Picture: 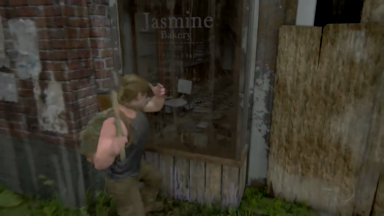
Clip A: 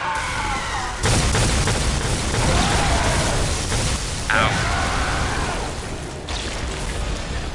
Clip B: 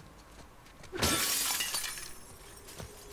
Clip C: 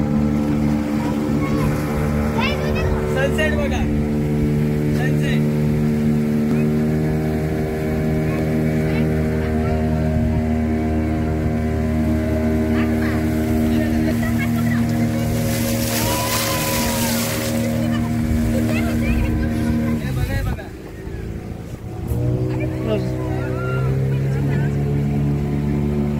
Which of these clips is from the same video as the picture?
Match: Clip B